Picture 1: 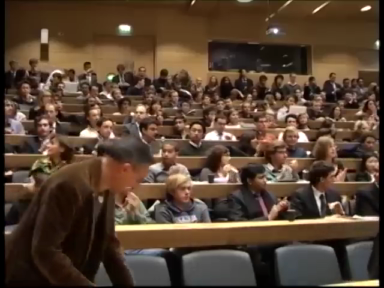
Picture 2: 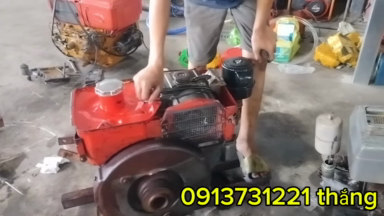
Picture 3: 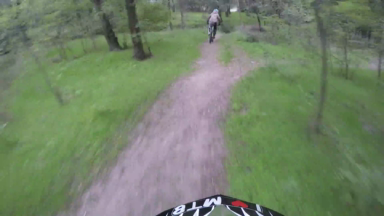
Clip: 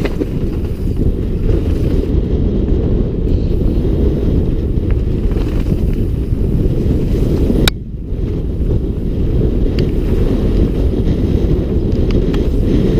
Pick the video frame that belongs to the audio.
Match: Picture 3